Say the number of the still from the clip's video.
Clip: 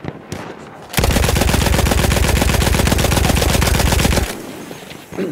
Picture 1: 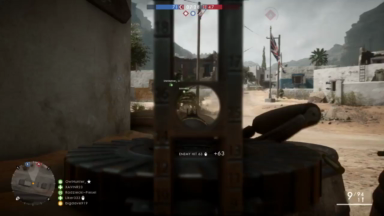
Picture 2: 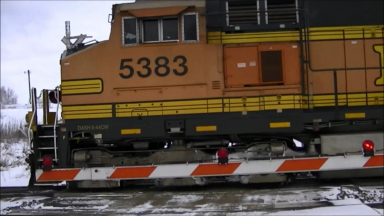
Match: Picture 1